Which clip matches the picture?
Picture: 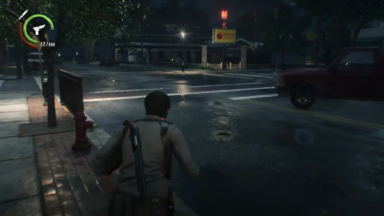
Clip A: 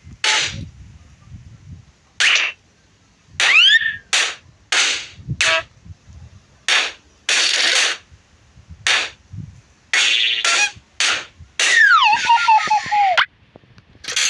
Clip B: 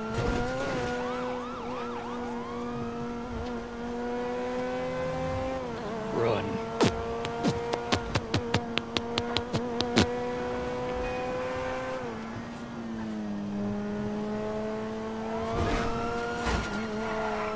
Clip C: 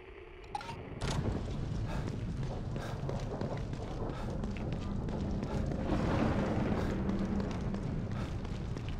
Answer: C